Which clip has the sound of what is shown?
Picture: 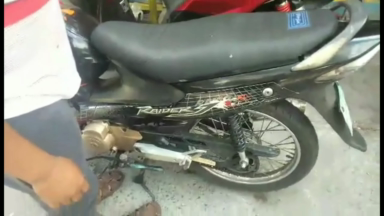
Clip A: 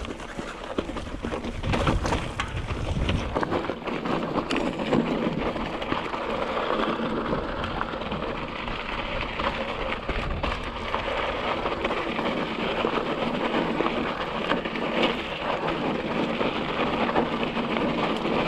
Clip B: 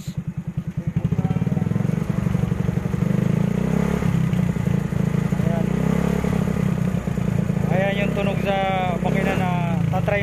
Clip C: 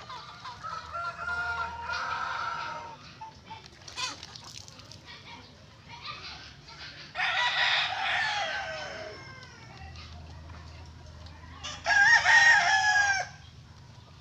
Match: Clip B